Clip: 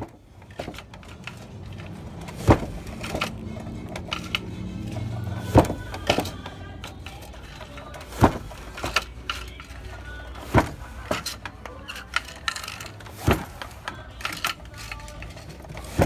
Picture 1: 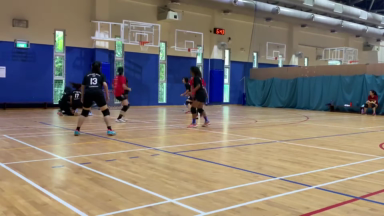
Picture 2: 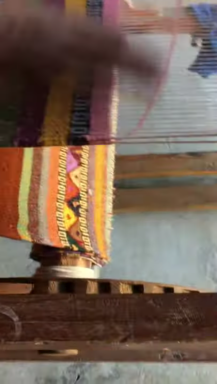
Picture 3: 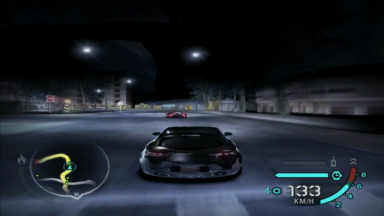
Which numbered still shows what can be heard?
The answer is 2